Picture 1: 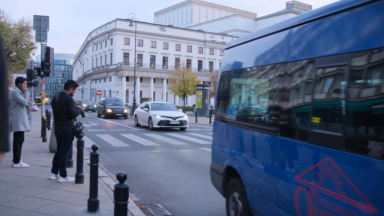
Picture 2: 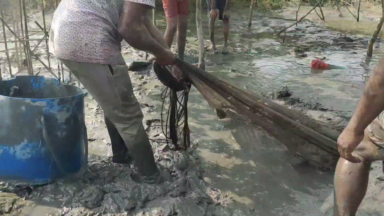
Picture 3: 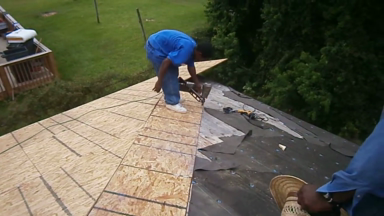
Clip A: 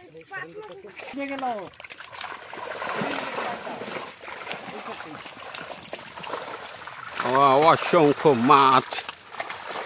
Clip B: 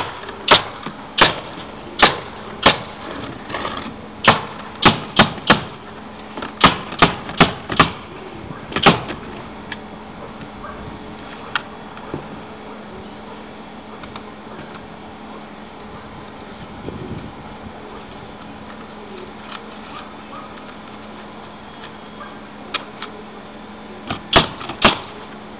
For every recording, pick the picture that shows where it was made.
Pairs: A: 2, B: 3